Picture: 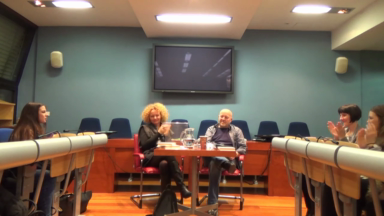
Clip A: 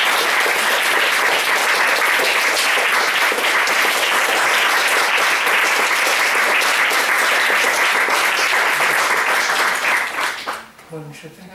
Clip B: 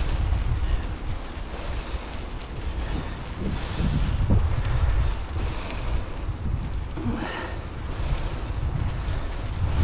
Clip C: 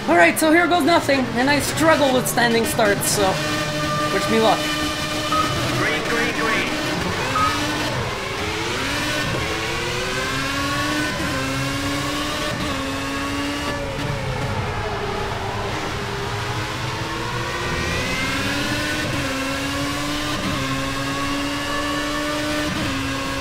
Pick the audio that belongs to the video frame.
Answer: A